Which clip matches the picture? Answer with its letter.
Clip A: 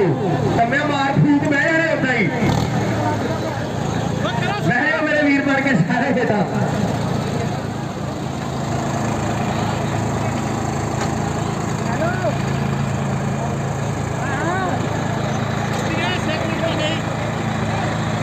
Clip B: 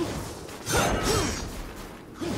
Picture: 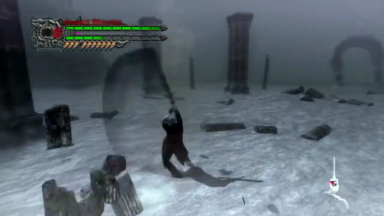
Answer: B